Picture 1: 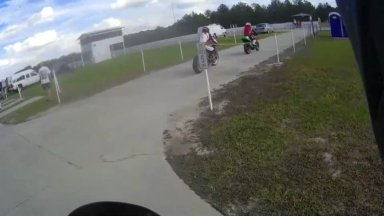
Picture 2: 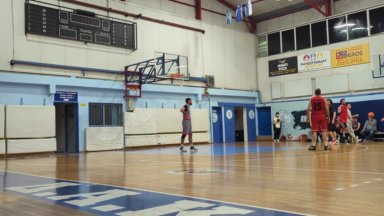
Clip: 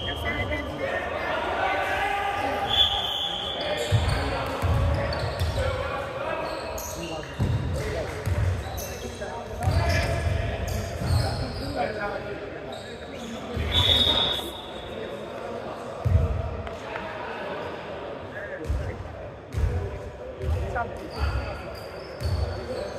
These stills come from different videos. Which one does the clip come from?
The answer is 2